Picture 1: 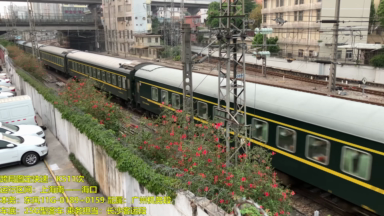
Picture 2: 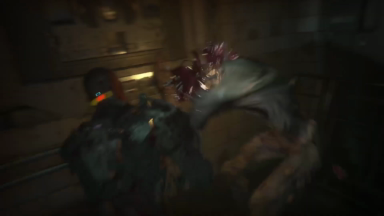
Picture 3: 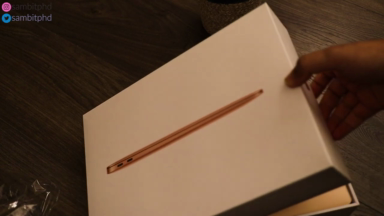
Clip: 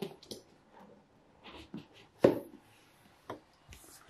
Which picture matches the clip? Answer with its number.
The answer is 3